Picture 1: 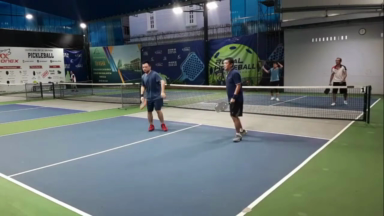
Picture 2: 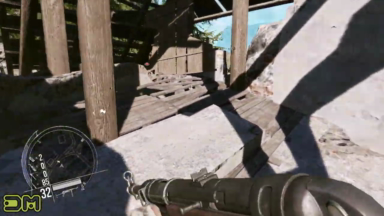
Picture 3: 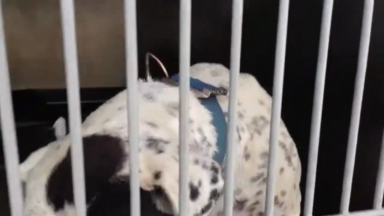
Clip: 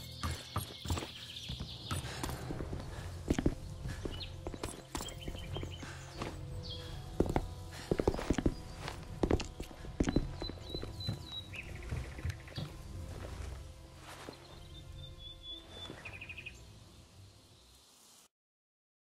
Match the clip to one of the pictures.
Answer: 2